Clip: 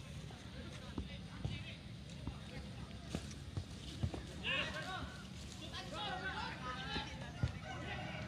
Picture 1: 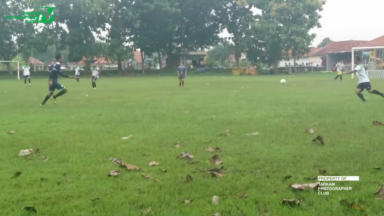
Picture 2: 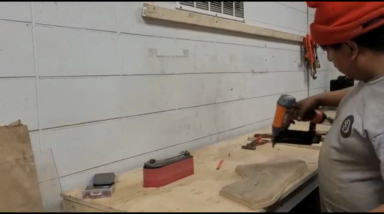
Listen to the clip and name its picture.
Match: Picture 1